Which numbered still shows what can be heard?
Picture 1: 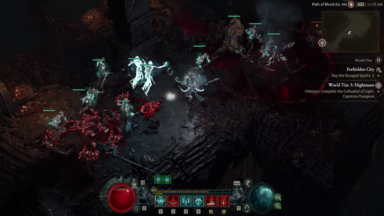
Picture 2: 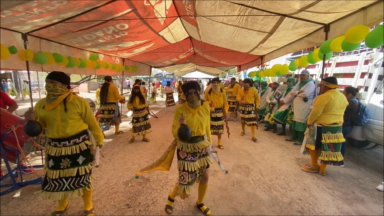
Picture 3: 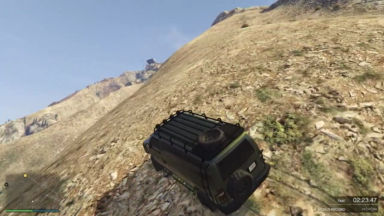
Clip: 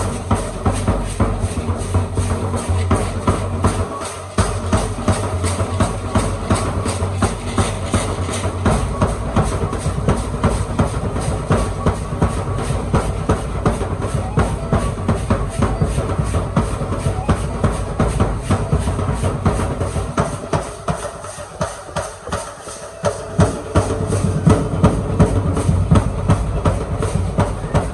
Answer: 2